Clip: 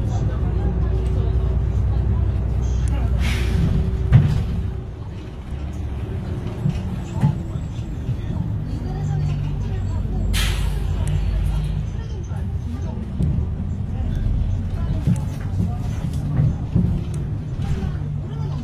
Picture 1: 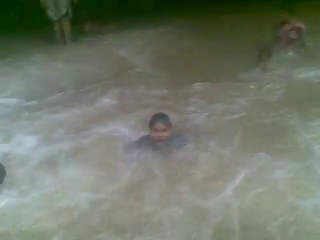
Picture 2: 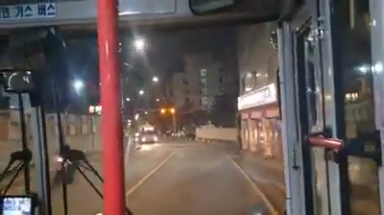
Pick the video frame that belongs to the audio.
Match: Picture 2